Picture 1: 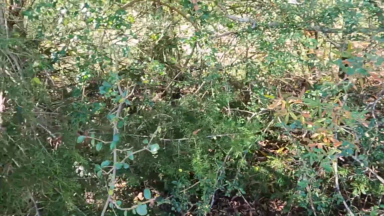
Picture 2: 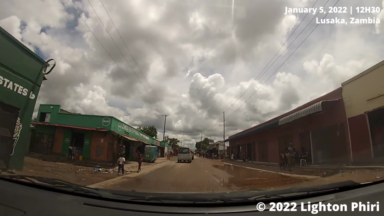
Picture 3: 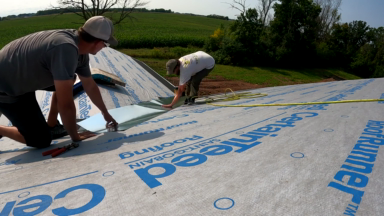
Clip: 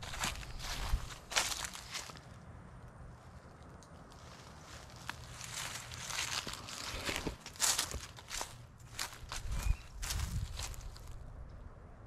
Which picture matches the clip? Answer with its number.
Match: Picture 1